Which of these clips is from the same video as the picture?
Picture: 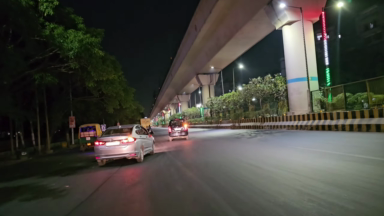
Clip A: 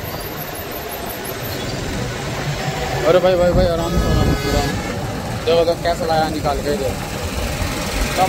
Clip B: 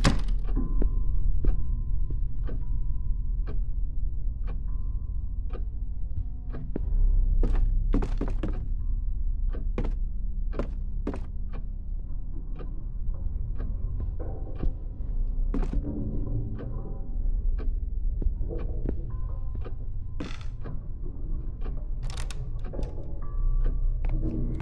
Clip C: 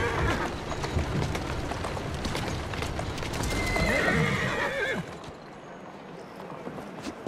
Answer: A